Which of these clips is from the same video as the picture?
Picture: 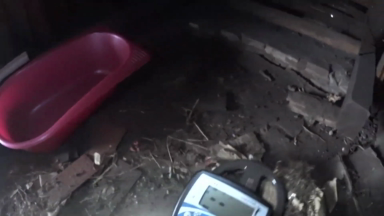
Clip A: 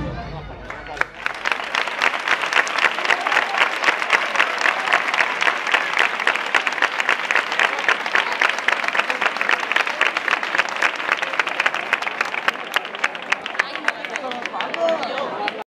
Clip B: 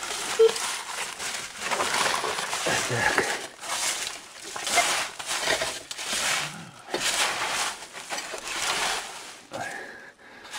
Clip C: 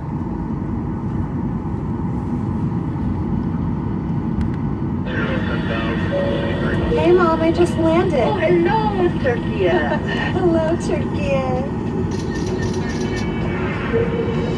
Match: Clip B